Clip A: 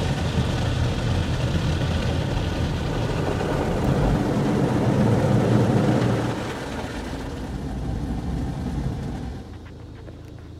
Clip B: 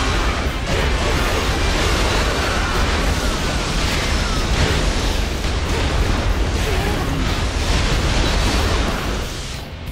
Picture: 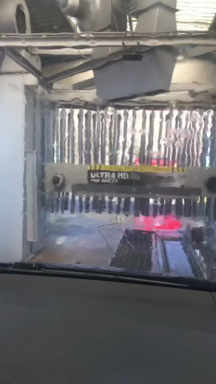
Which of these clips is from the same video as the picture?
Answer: A